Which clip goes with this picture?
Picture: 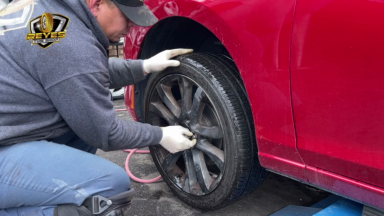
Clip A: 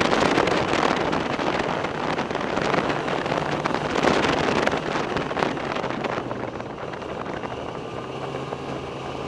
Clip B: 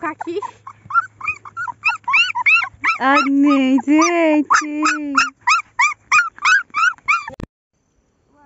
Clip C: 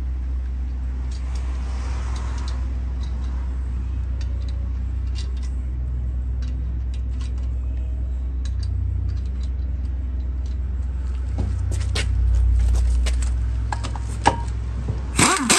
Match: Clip C